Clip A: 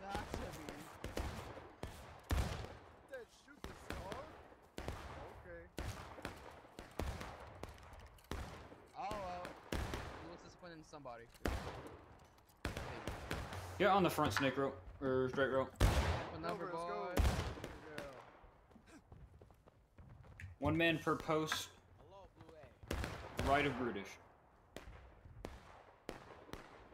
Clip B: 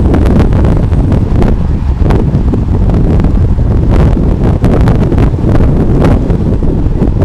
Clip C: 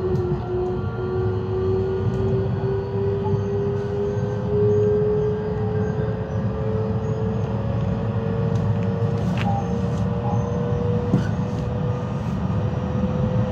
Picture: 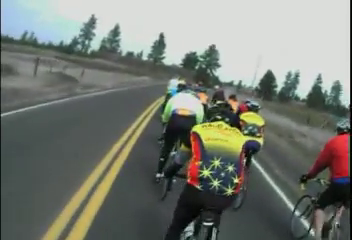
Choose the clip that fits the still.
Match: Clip B